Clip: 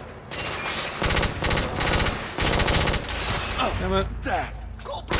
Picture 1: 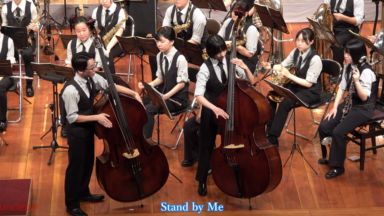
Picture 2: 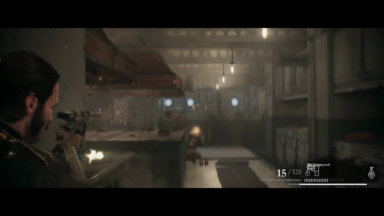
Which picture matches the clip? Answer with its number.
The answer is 2